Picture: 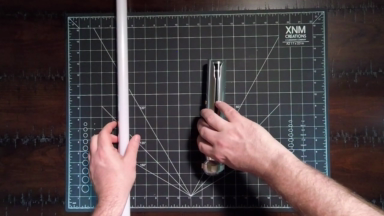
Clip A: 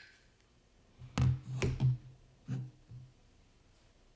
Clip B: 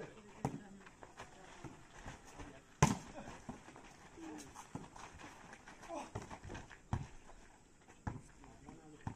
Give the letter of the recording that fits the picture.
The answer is A